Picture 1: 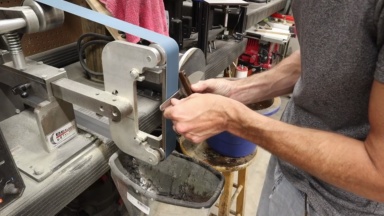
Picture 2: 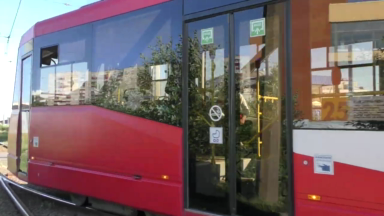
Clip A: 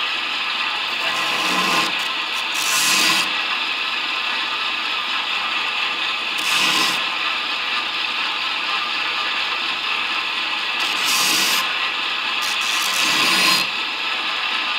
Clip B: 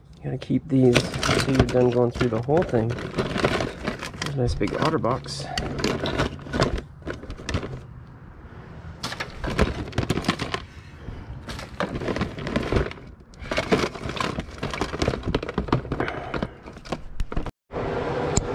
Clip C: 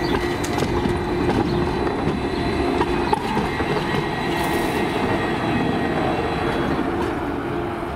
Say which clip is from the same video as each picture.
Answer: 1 A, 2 C